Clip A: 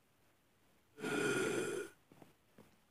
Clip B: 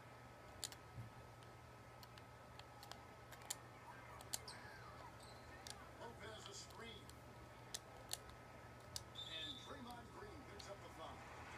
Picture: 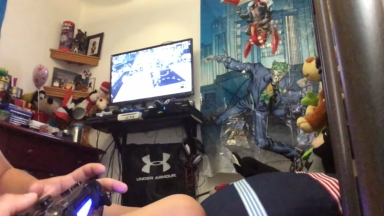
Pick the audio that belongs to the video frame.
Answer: B